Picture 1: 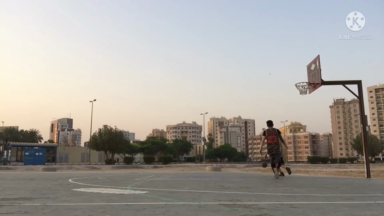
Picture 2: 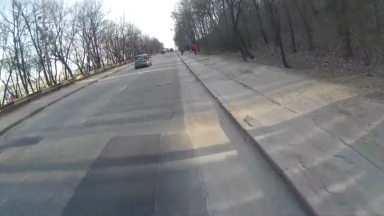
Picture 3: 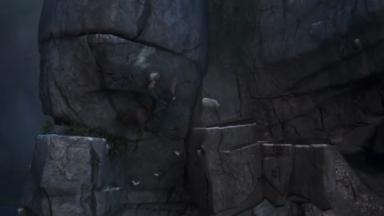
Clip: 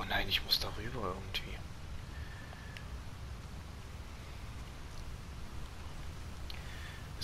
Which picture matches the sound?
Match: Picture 3